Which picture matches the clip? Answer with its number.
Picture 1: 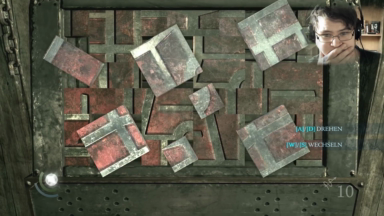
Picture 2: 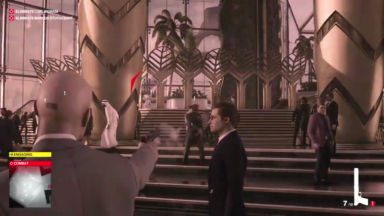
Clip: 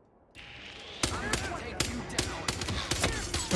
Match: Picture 2